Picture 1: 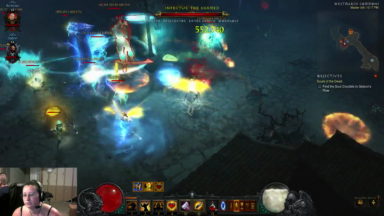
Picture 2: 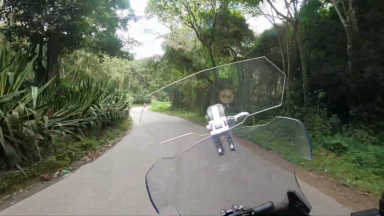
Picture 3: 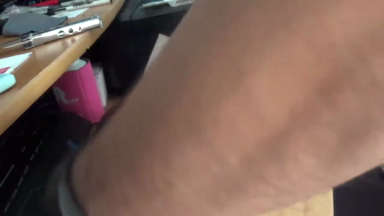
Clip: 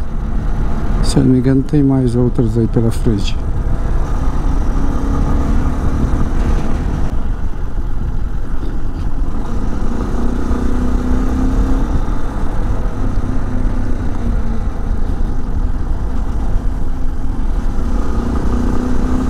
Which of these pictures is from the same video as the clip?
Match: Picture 2